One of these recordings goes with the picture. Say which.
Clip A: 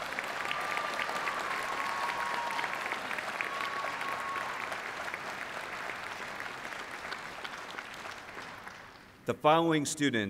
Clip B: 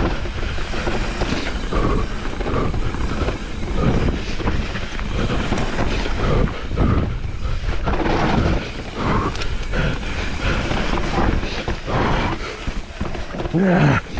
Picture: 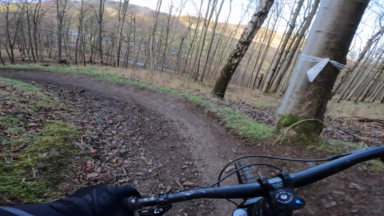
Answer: B